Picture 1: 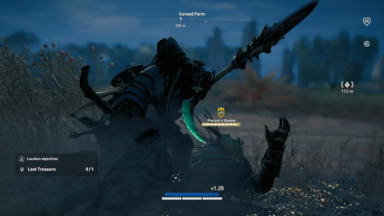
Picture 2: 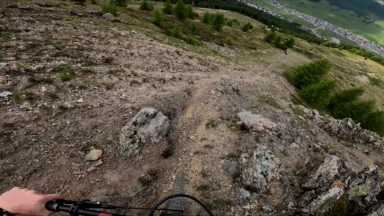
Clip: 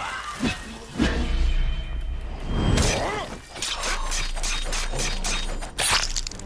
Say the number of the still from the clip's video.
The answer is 1